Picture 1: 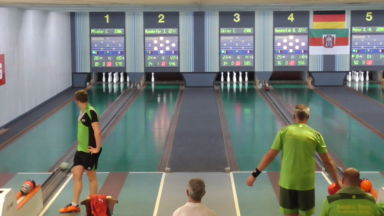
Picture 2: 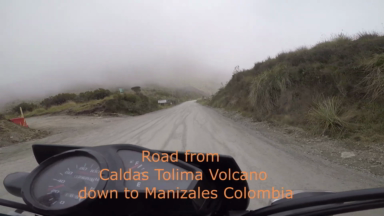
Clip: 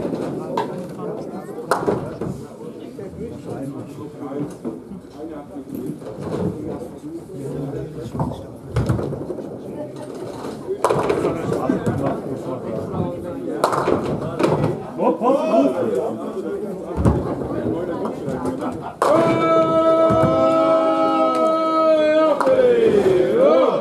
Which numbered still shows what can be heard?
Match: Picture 1